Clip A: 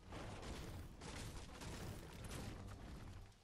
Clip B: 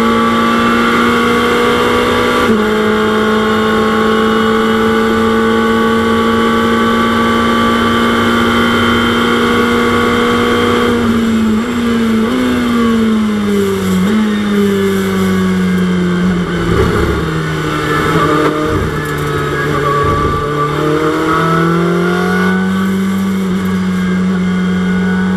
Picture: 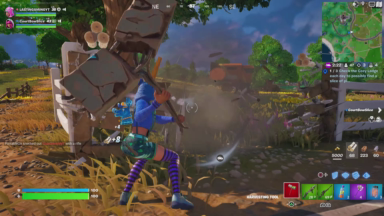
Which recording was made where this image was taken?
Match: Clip A